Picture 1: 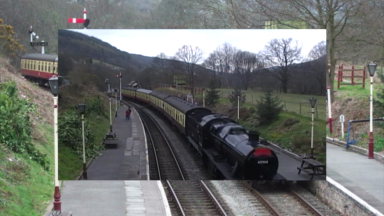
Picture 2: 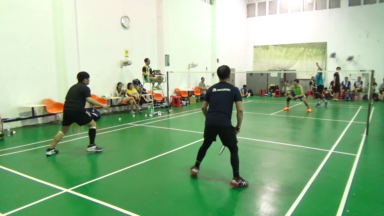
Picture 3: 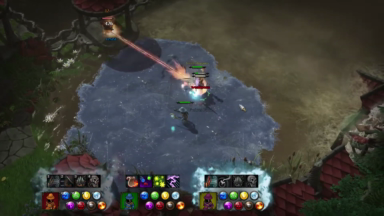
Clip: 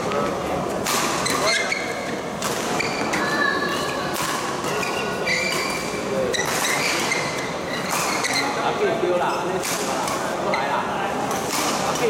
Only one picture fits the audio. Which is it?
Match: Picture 2